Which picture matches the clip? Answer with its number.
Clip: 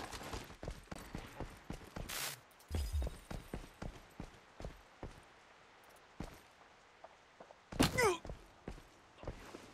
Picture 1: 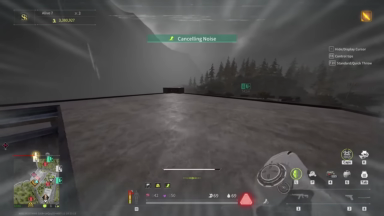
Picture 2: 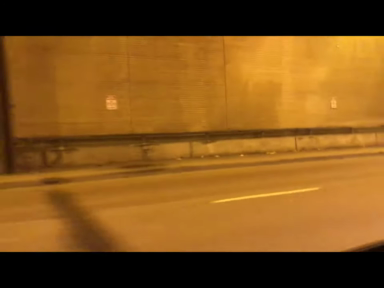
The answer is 1